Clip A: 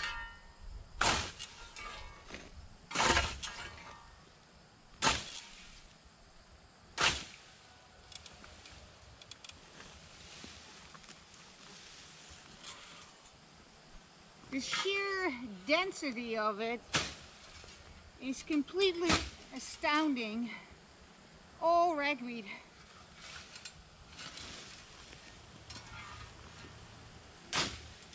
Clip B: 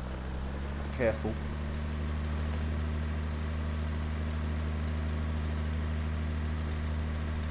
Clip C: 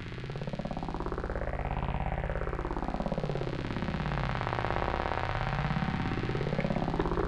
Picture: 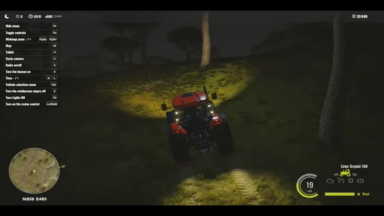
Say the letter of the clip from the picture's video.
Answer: B